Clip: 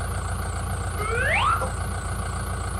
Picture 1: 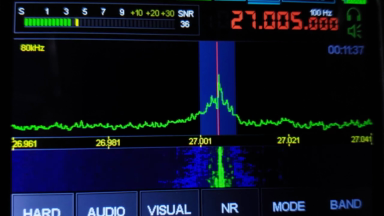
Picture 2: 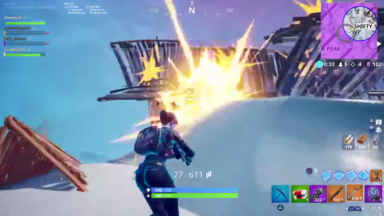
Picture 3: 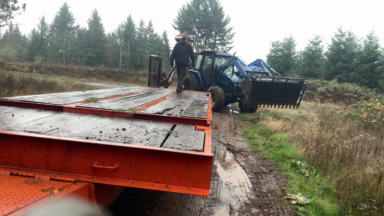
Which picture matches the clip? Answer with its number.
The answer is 3